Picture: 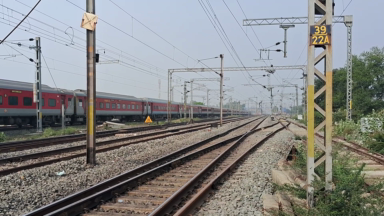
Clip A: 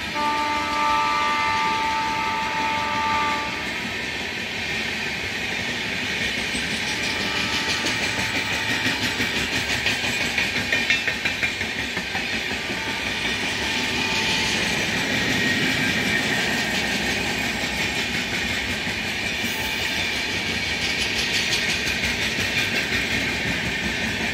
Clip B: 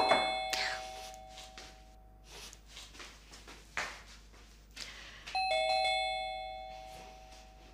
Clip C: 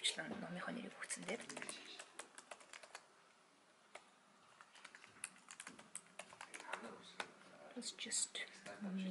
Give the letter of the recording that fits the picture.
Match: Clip A